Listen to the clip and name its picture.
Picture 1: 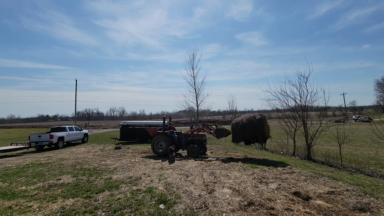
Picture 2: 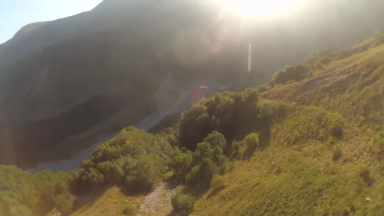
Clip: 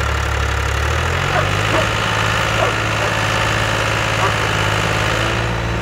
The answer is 1